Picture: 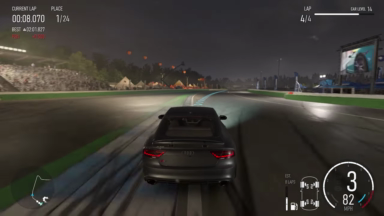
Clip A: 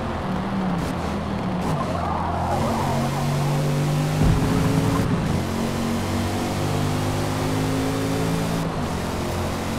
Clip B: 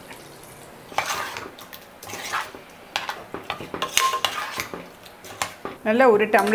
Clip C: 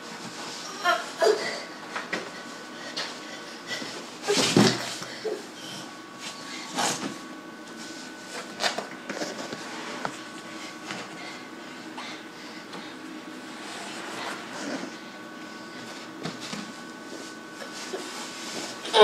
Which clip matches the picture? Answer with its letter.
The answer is A